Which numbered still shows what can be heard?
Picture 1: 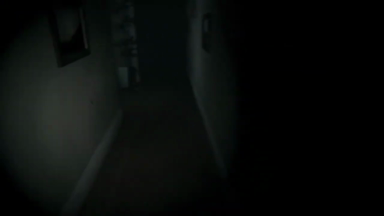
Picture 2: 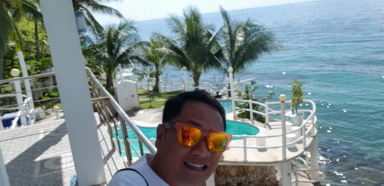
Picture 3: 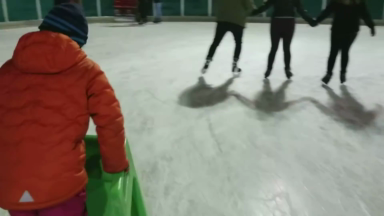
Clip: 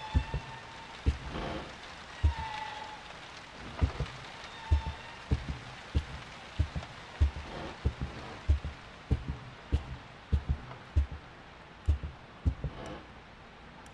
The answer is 1